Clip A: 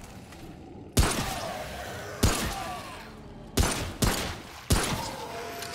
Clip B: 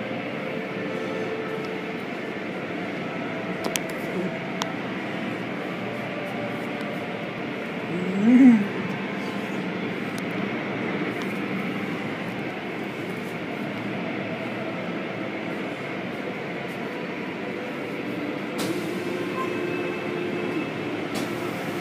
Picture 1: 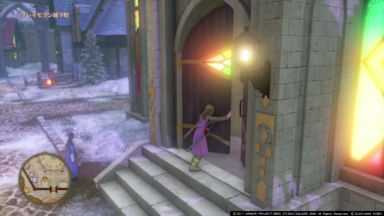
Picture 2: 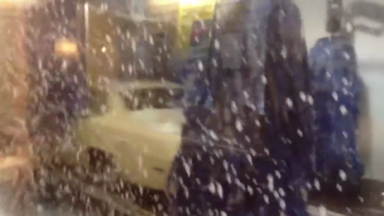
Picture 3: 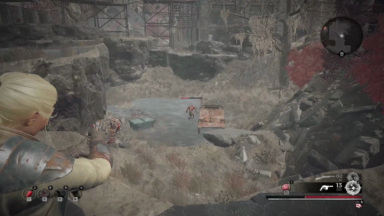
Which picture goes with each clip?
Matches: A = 3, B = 2